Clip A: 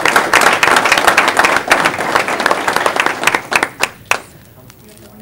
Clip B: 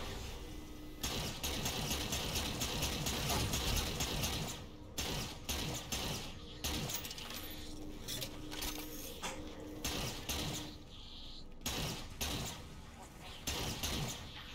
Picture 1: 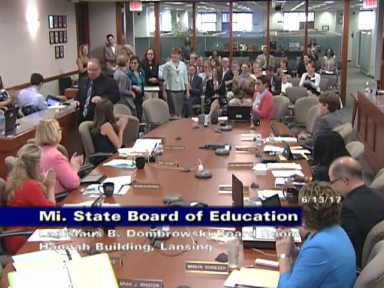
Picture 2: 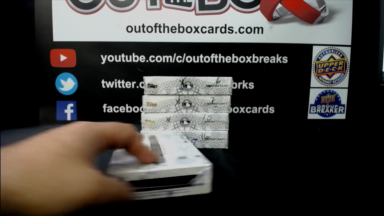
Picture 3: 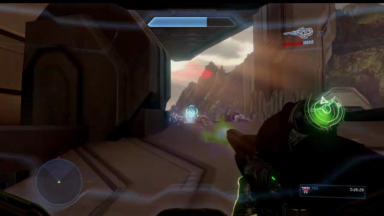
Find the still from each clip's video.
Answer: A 1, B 3